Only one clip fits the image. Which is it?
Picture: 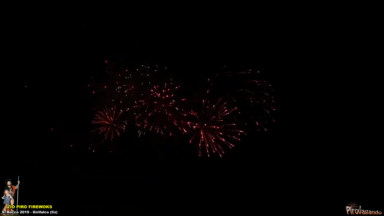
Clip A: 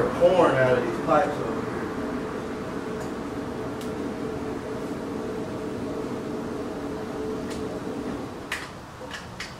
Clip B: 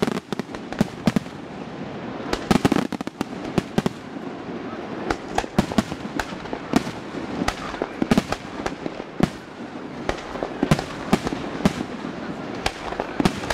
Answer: B